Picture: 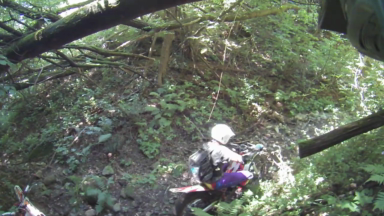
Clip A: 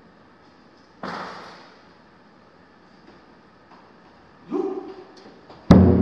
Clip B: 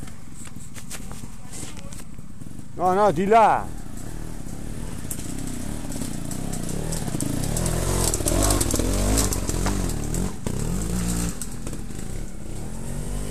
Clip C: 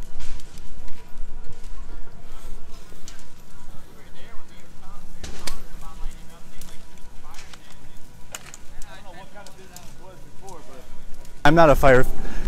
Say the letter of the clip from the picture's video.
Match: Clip B